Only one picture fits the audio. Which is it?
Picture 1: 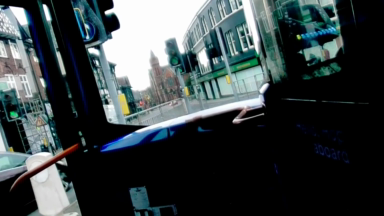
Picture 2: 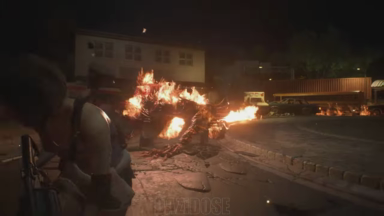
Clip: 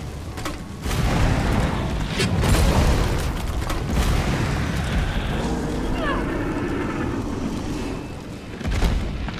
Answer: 2